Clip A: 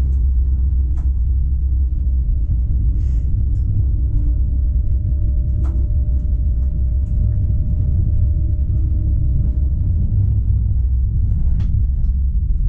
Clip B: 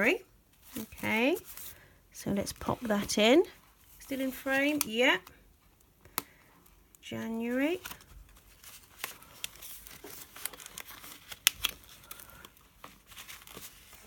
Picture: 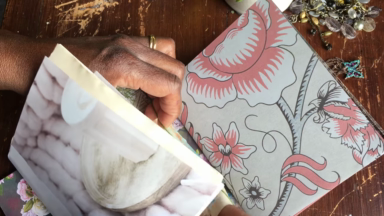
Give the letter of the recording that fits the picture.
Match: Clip B